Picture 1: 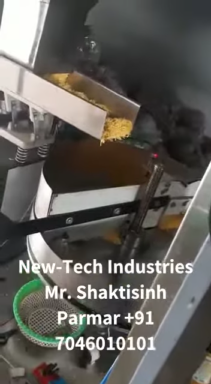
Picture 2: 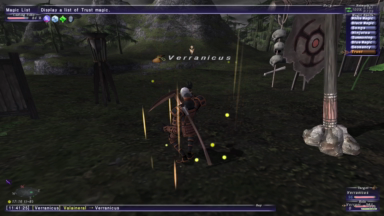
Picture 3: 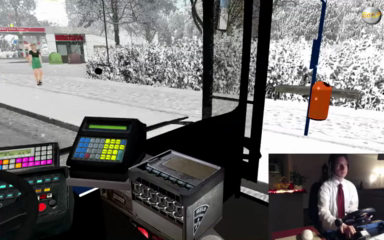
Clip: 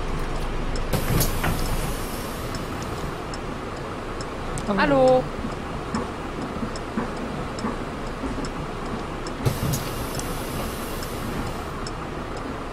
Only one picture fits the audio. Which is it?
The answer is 3